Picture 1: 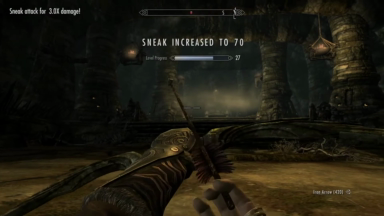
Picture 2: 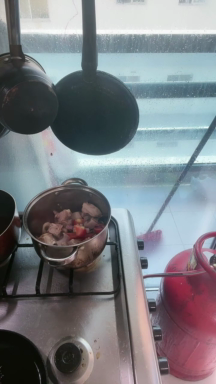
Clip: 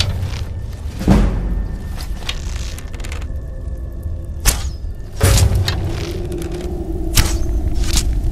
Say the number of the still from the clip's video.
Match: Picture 1